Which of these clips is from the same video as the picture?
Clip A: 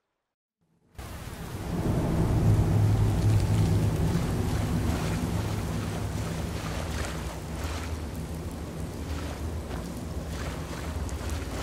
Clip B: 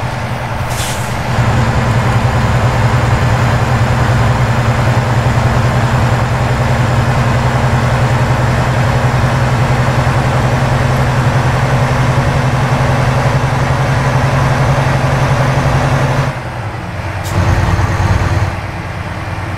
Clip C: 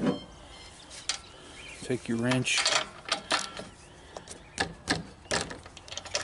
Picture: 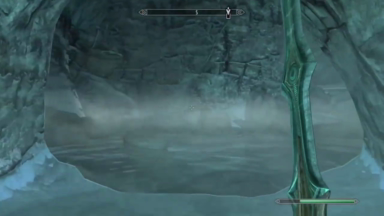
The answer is A